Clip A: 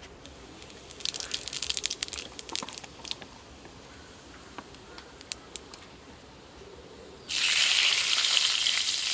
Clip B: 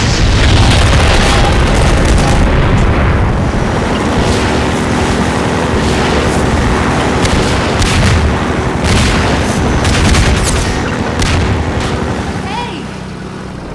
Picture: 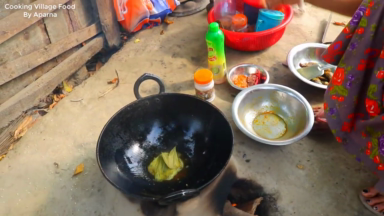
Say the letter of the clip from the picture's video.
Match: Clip A